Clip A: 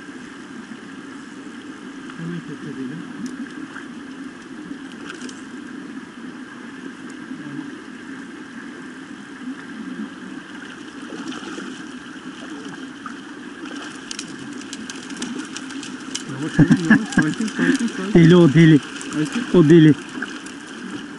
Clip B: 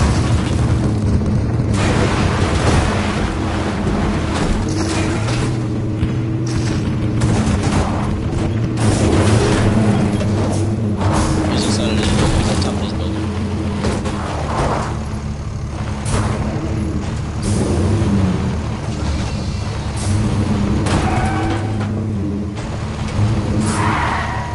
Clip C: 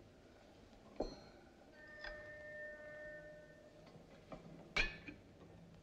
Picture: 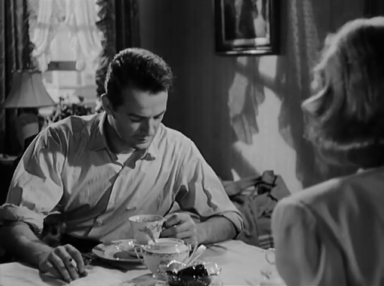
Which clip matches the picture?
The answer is C